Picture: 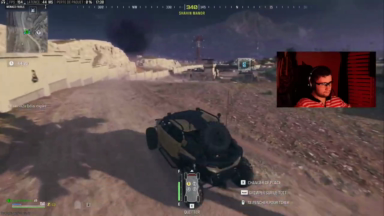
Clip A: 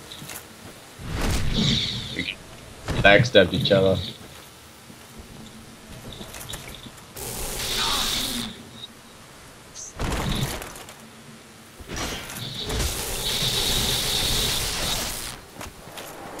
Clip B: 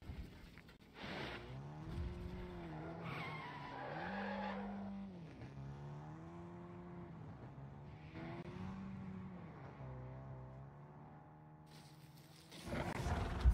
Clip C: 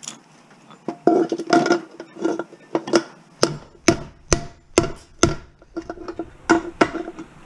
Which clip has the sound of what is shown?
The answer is B